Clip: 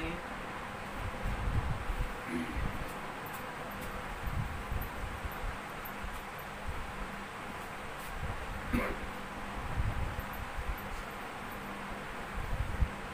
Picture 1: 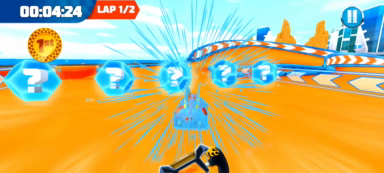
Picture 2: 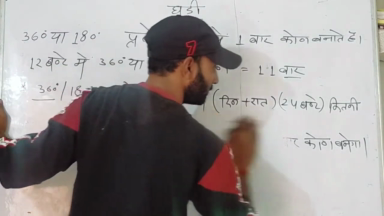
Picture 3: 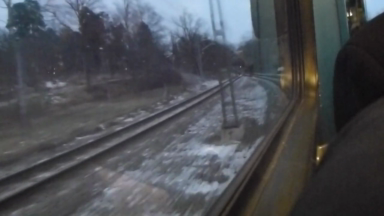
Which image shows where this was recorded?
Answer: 2